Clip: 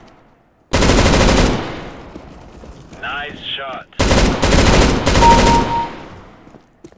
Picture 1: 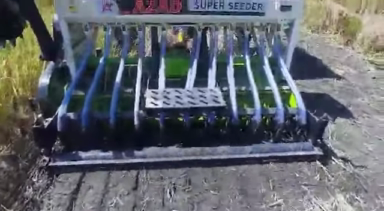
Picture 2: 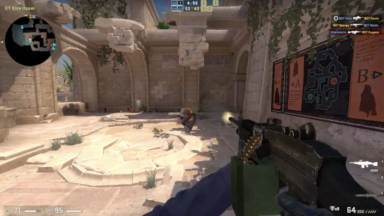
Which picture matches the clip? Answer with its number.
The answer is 2